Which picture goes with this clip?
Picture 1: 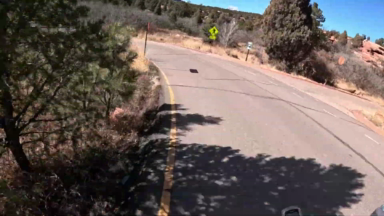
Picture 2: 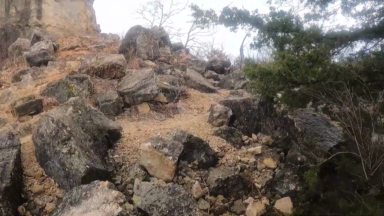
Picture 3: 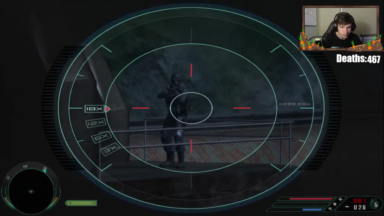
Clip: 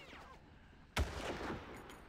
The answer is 3